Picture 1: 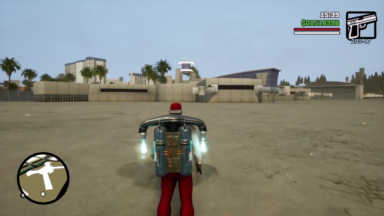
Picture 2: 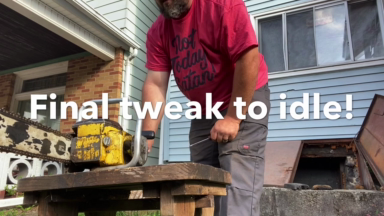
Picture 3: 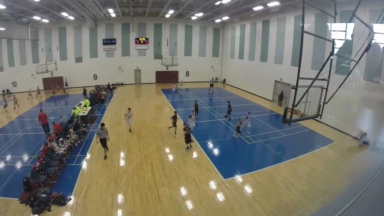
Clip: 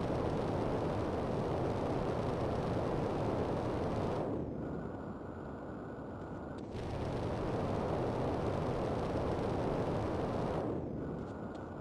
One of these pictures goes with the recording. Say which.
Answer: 1